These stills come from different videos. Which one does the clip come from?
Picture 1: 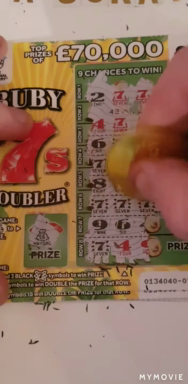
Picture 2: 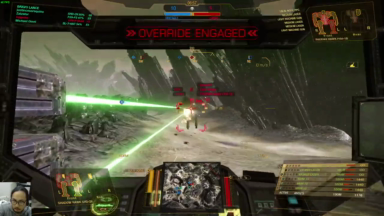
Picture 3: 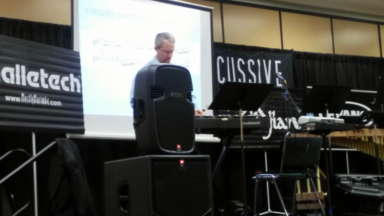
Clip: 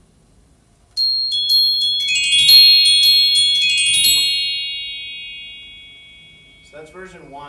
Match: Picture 3